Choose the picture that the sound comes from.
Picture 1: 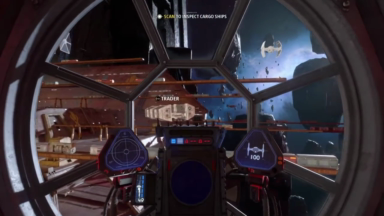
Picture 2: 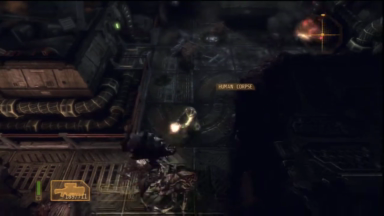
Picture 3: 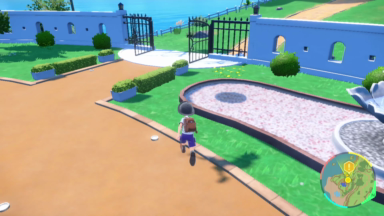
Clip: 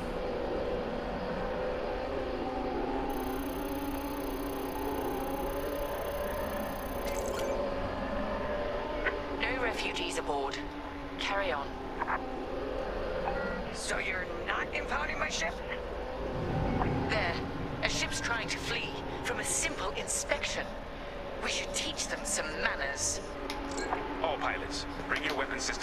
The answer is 1